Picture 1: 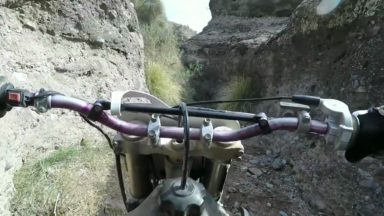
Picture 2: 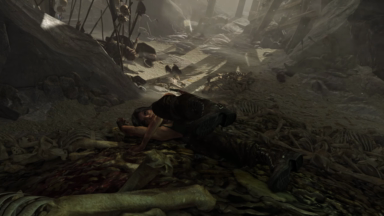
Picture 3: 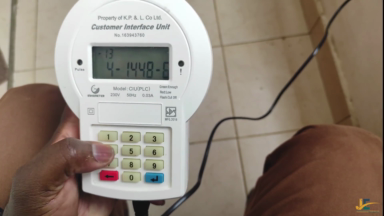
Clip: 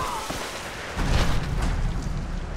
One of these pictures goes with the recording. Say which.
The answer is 2